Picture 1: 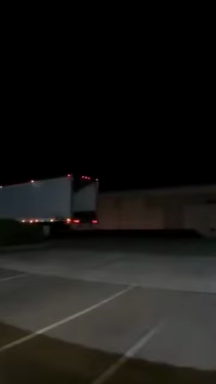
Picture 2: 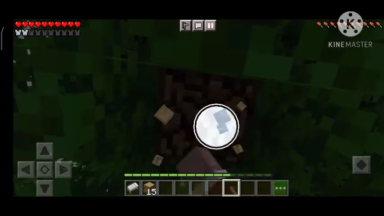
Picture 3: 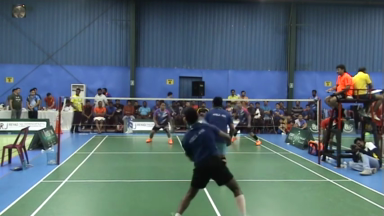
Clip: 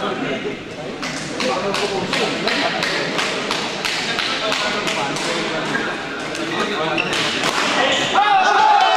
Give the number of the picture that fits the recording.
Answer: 3